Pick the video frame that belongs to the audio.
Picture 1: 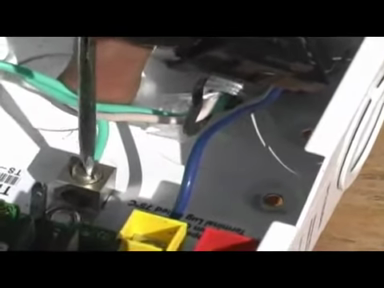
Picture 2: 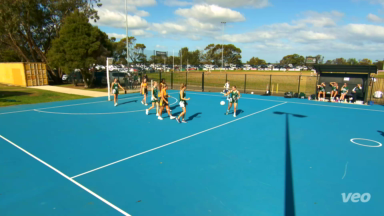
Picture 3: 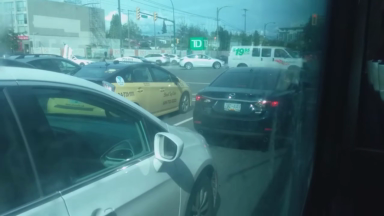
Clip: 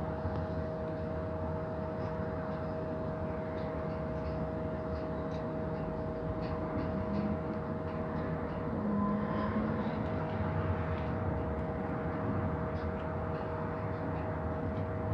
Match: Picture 3